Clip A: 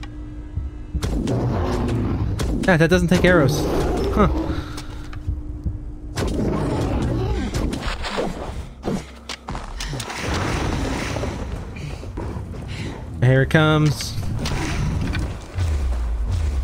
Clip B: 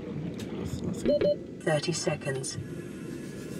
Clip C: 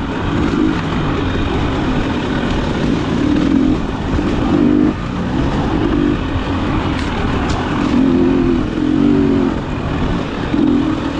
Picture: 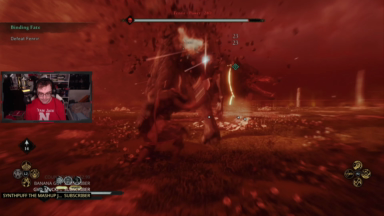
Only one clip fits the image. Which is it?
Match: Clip A